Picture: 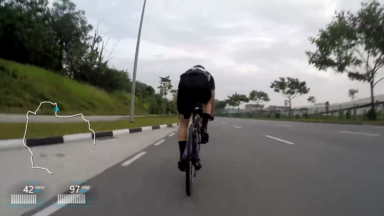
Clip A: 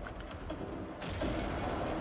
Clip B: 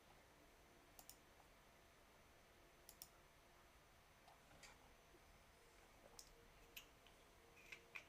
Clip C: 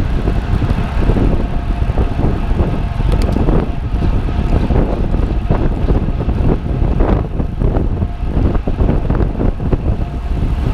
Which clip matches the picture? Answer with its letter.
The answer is C